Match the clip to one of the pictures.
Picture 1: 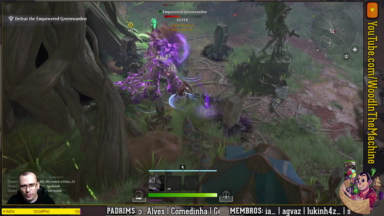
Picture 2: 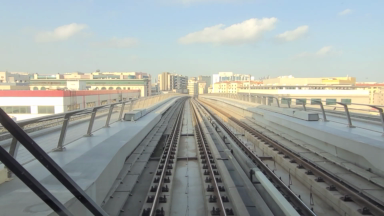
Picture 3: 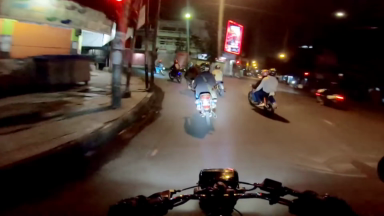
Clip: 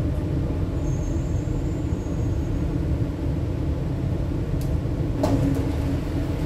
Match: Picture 2